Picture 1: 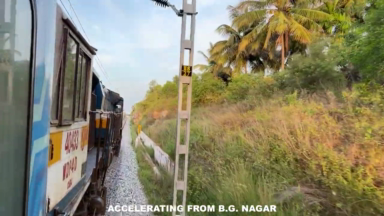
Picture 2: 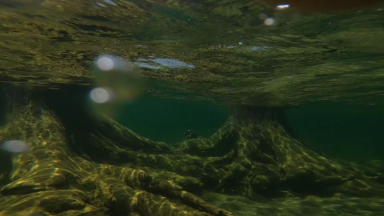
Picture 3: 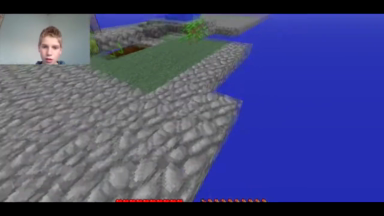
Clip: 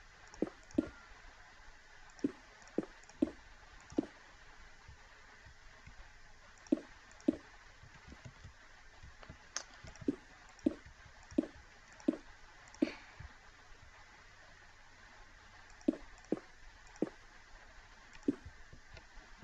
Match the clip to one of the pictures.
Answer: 3